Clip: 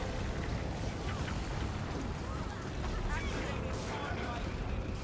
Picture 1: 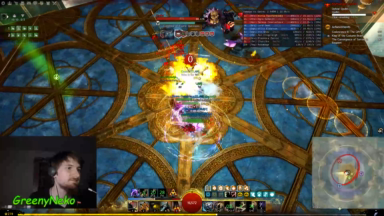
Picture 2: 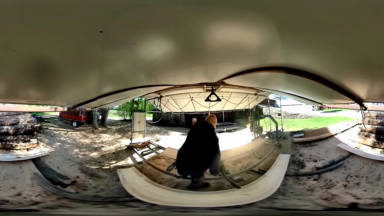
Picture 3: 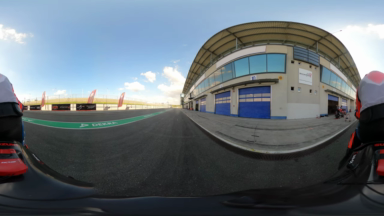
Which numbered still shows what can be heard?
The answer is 1